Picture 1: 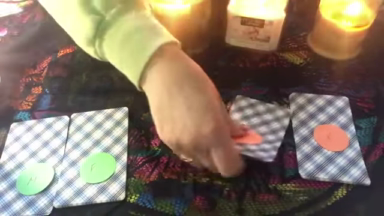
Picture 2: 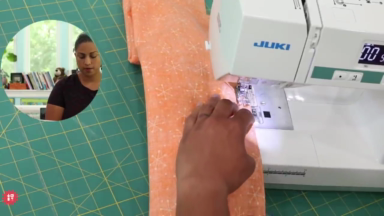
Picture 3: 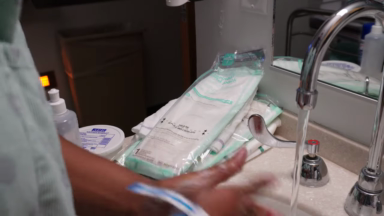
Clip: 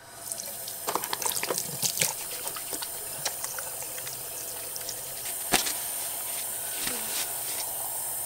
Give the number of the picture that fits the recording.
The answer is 3